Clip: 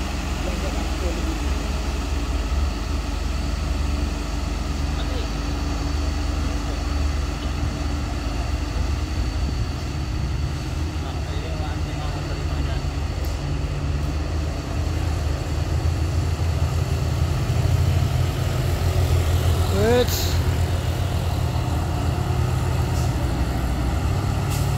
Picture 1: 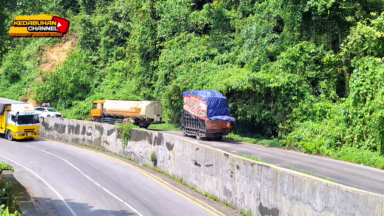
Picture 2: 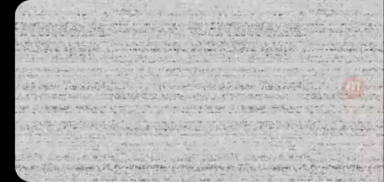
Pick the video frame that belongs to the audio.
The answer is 1